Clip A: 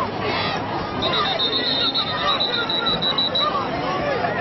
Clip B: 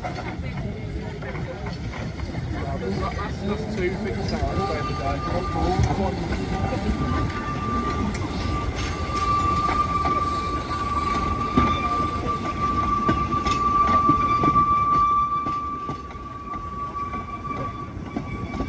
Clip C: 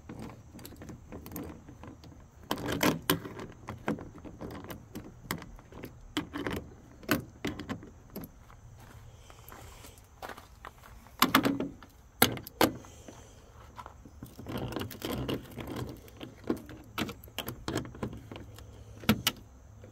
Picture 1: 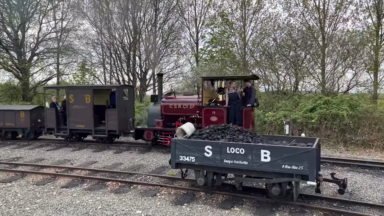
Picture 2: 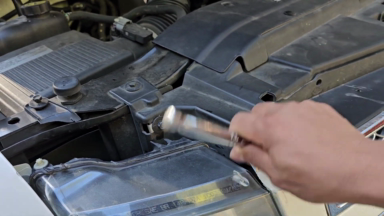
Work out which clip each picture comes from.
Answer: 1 B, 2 C